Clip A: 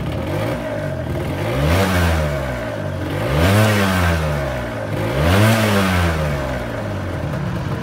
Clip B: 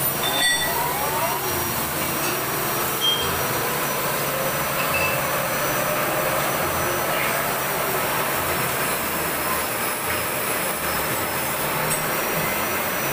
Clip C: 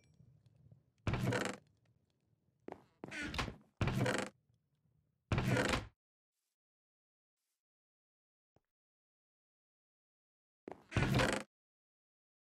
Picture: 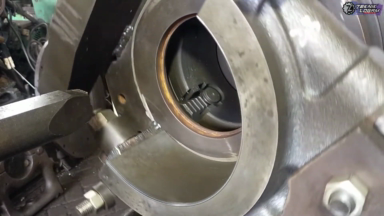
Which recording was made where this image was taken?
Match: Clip B